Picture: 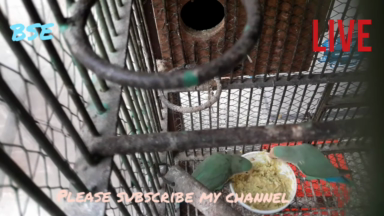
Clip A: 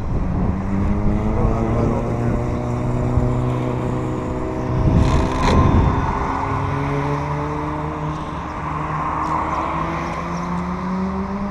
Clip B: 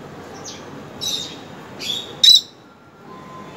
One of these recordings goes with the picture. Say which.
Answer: B